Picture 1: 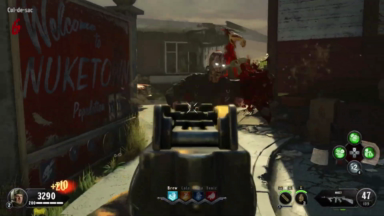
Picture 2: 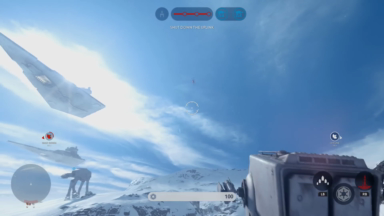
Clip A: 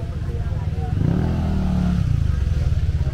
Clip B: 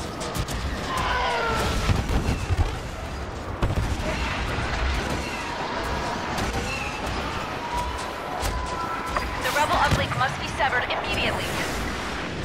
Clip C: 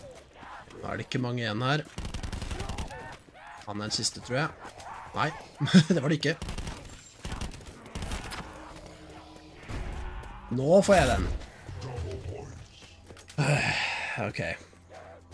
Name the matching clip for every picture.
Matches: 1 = C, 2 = B